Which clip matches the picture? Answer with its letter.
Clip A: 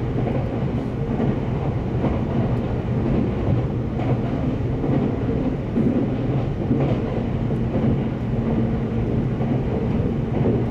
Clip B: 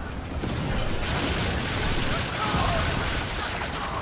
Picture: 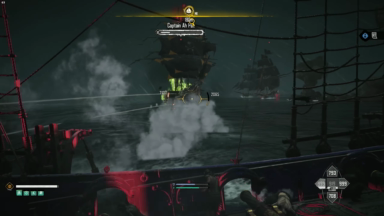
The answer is B